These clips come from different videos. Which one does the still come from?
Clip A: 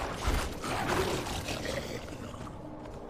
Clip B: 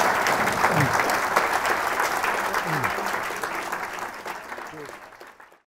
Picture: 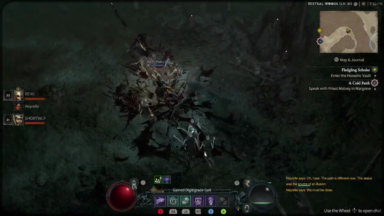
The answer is A